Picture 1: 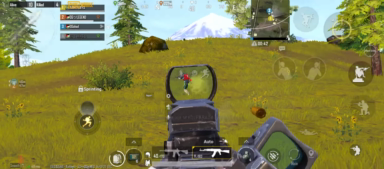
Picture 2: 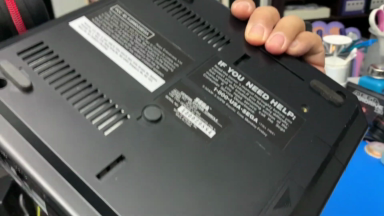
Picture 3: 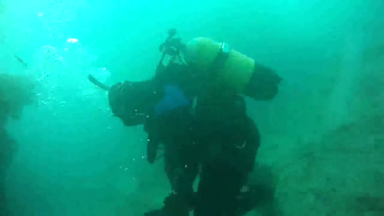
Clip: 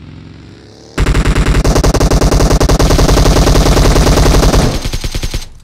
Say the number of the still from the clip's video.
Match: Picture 1